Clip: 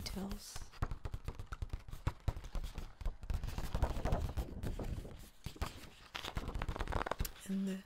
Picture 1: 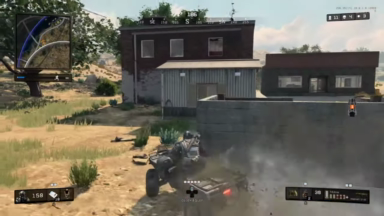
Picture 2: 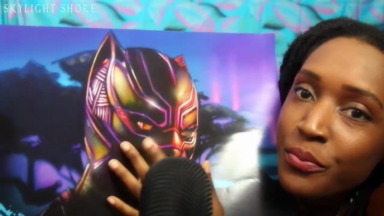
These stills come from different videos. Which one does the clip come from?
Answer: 2